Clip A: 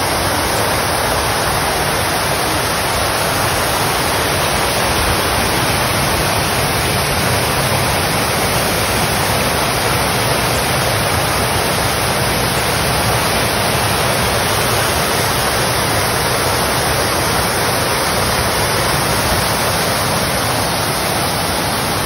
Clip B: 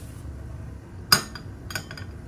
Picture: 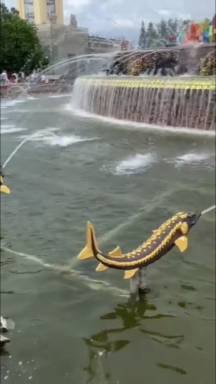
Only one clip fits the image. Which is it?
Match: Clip A